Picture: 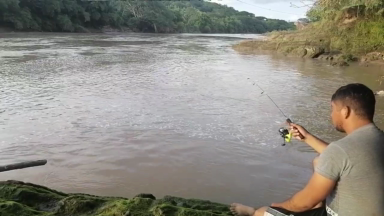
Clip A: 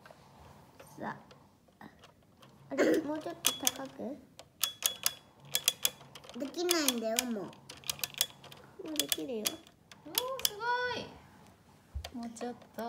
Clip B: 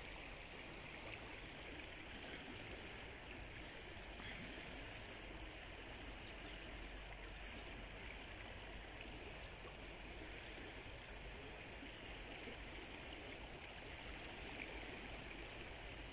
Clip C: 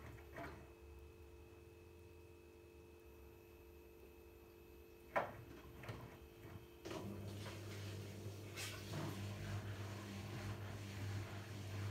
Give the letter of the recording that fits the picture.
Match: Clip B